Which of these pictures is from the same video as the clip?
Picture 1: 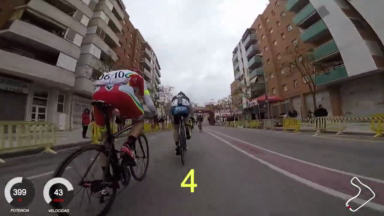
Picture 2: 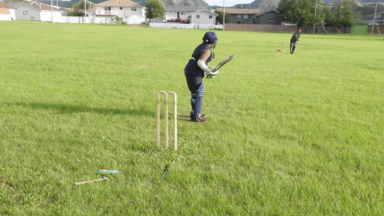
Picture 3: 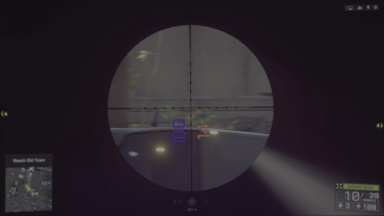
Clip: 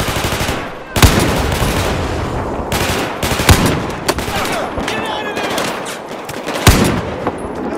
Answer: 3